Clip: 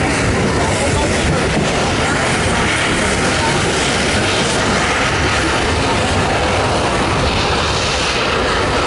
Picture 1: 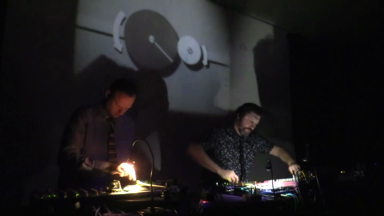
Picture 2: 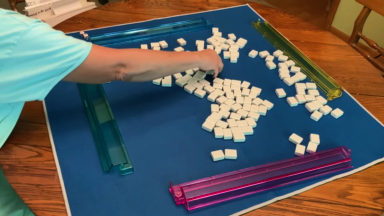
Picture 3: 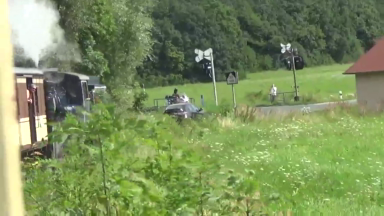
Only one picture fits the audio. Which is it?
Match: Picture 3